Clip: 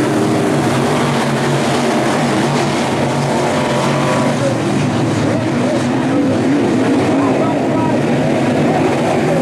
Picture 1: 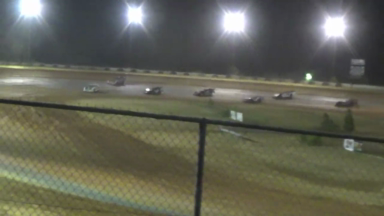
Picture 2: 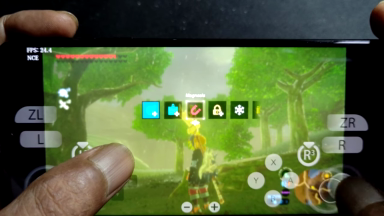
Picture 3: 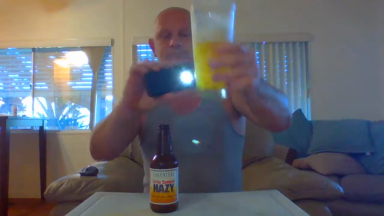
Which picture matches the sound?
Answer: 1